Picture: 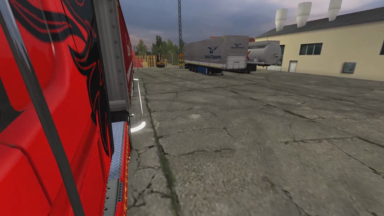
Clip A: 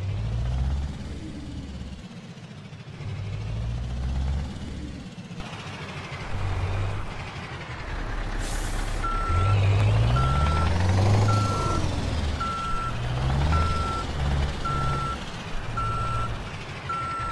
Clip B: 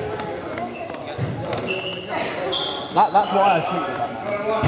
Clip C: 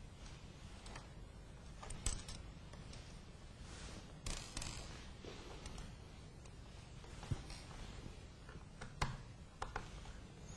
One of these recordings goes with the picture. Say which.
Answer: A